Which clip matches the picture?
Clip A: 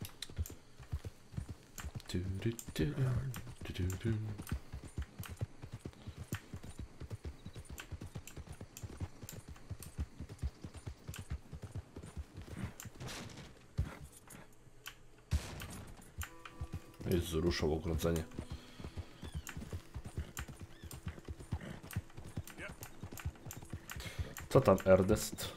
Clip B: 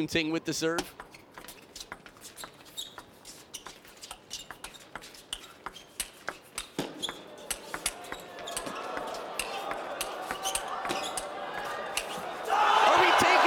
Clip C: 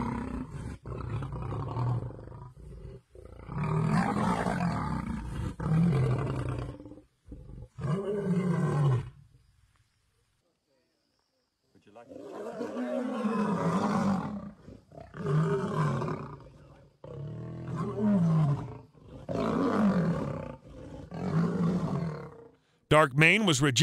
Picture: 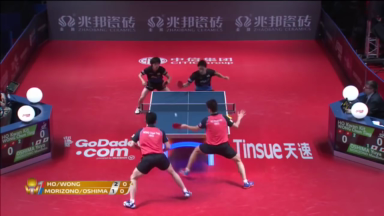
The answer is B